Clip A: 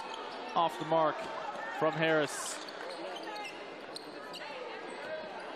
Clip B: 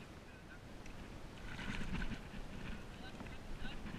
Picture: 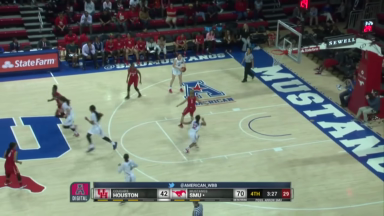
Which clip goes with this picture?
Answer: A